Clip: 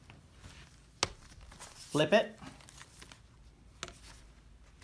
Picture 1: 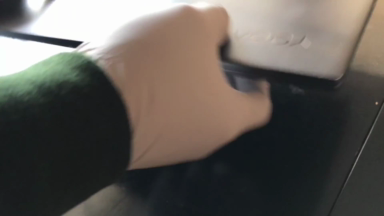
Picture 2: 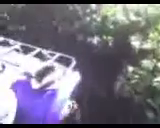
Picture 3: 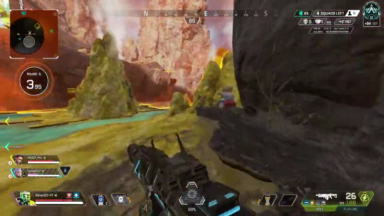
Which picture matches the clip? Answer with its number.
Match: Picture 1